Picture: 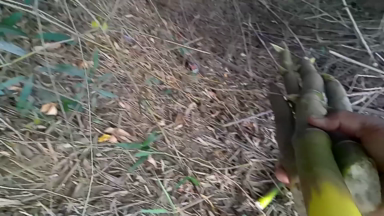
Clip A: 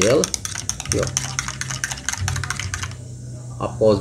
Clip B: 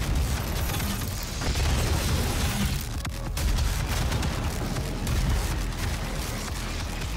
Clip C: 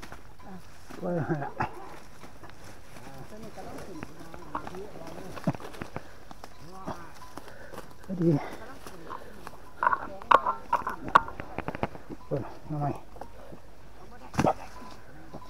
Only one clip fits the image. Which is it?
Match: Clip C